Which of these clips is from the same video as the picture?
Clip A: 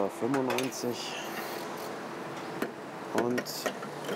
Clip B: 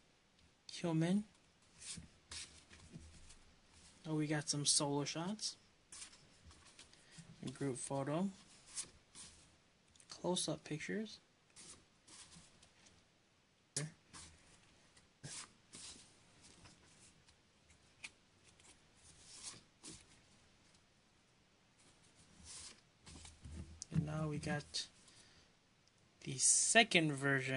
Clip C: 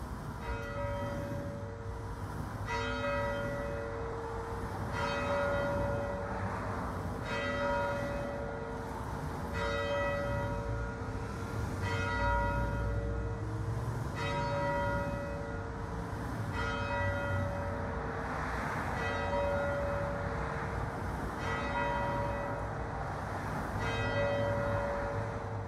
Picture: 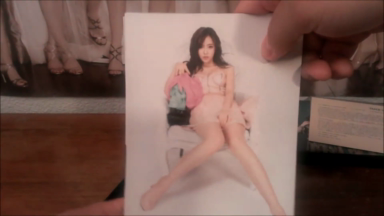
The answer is B